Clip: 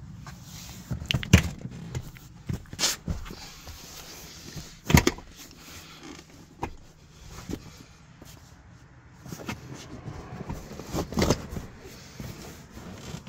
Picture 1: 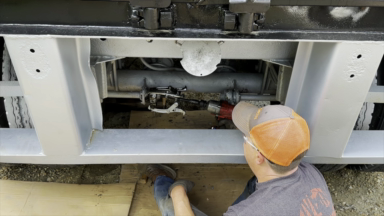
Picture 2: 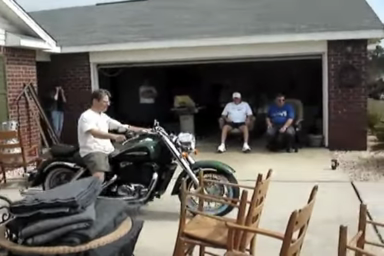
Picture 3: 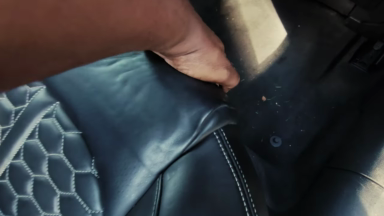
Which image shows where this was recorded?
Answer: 3